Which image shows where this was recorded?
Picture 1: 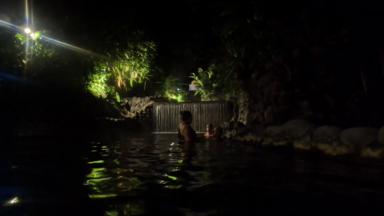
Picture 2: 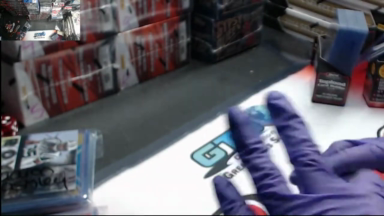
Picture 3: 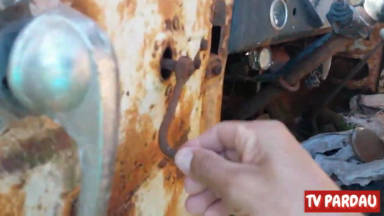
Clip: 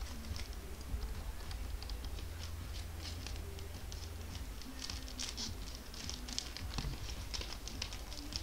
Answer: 2